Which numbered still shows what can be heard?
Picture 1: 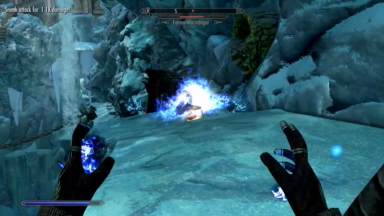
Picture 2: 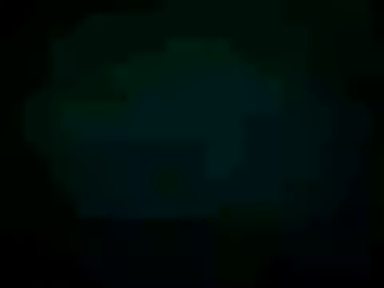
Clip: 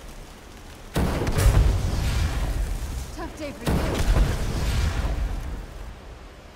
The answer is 1